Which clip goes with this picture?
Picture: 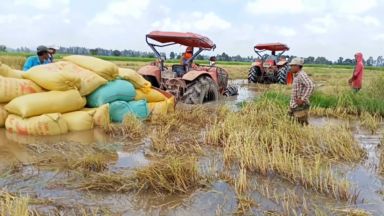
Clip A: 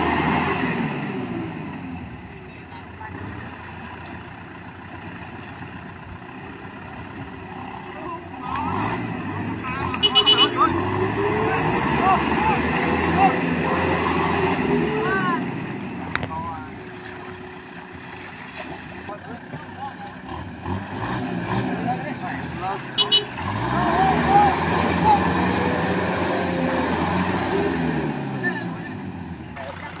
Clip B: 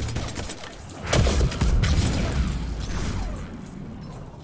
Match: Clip A